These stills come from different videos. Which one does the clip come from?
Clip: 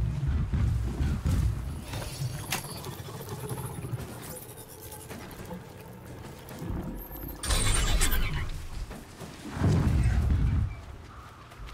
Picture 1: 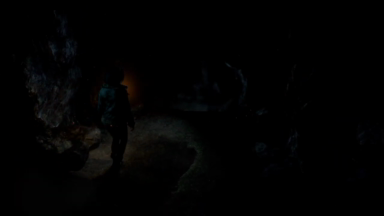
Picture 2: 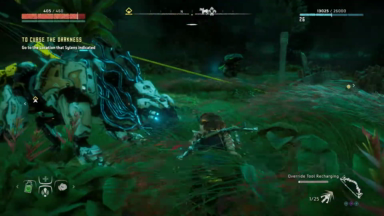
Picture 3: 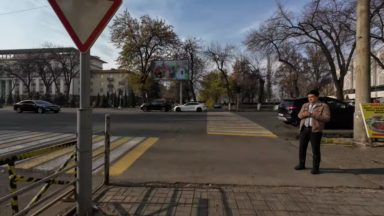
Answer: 2